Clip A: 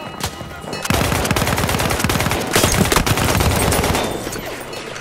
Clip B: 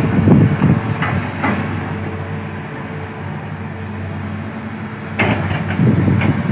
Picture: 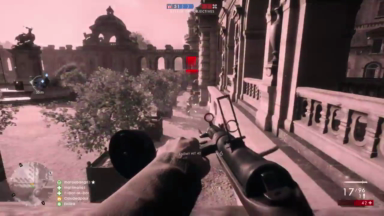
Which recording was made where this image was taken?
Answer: A